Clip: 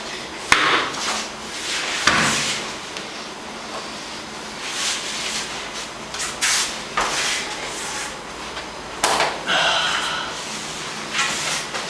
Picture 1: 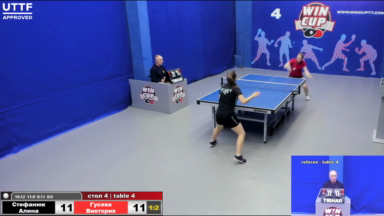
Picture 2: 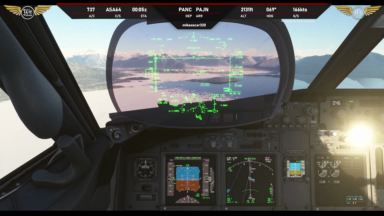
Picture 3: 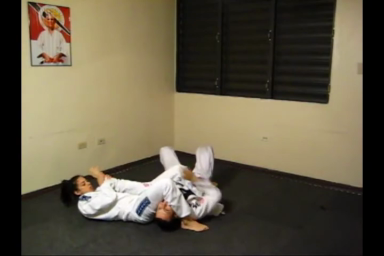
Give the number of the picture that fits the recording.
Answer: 3